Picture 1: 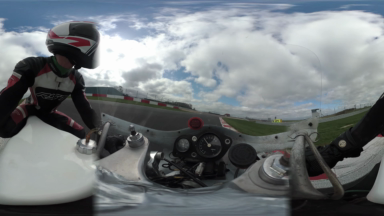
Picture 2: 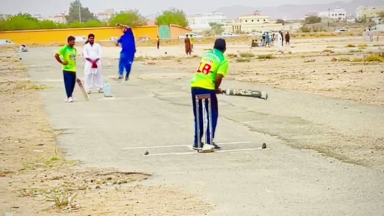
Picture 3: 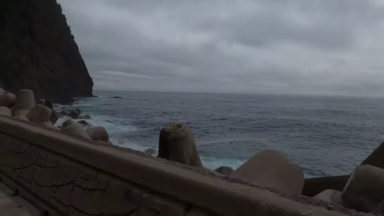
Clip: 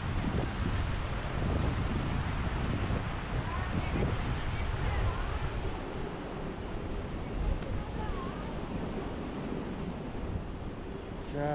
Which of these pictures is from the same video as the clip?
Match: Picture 3